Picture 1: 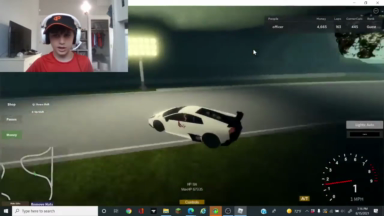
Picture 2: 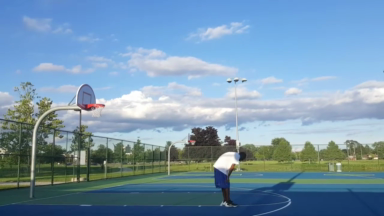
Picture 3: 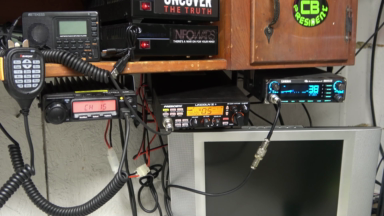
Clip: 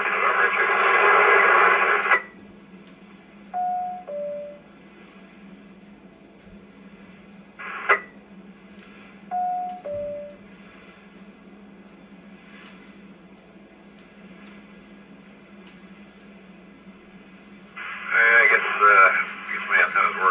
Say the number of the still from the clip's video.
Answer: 3